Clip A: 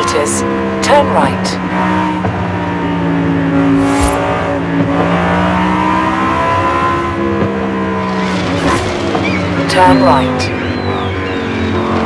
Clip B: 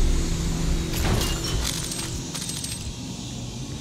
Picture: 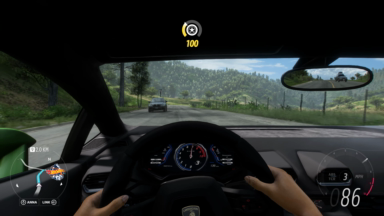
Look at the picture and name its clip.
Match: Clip A